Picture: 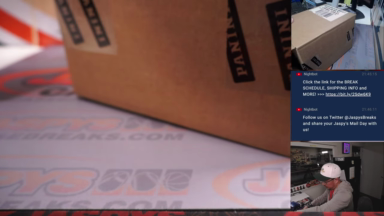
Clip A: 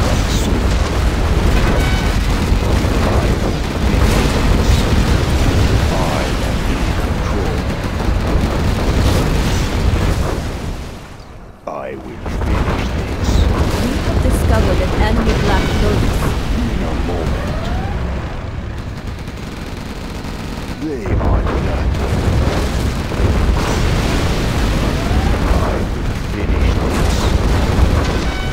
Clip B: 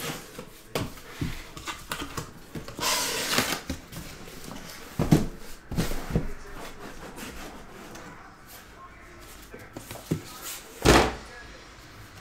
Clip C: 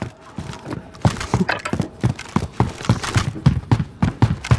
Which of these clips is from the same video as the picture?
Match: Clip B